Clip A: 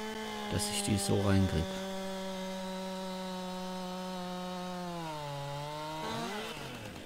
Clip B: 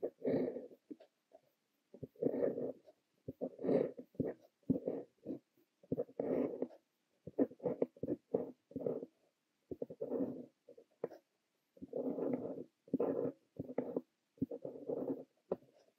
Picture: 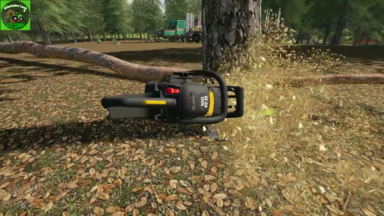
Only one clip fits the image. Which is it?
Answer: A